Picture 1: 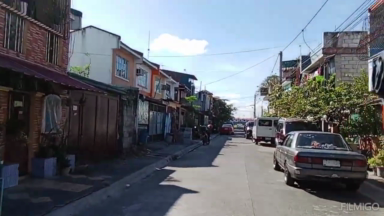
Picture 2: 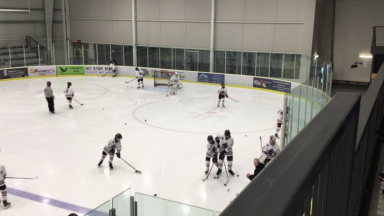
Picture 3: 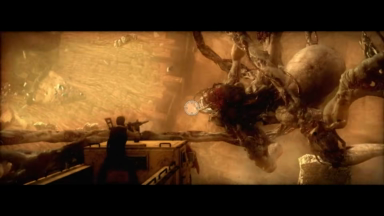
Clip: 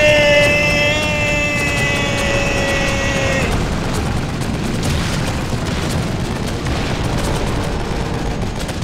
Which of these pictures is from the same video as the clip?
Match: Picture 3